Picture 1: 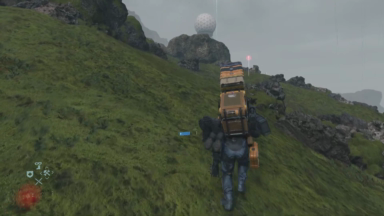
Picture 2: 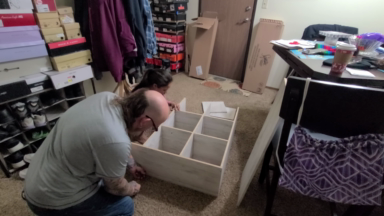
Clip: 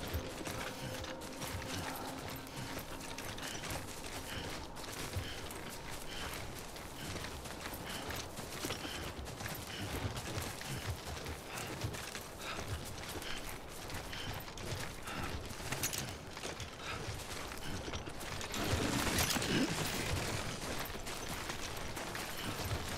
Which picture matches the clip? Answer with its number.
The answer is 1